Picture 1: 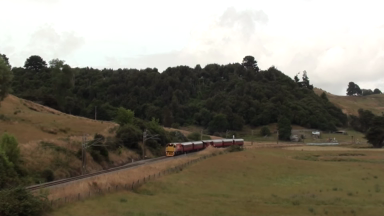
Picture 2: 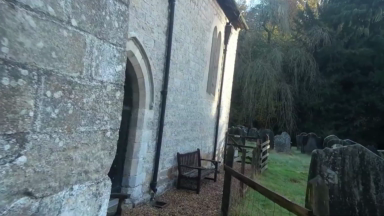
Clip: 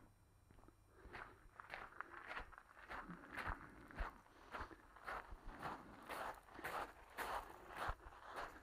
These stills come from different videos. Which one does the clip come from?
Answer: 2